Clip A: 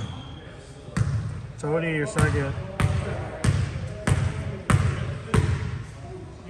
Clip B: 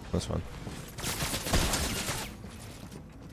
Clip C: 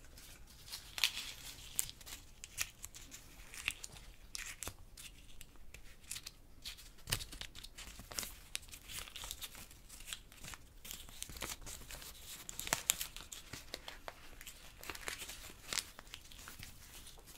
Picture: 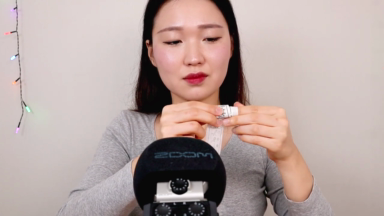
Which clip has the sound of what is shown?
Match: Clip C